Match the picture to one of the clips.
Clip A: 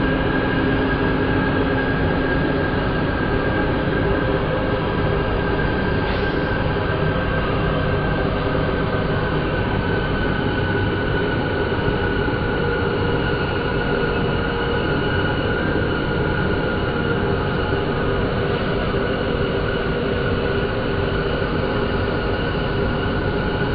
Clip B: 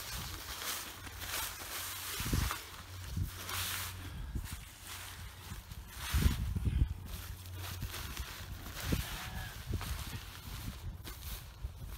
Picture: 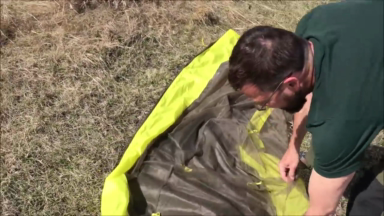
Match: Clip B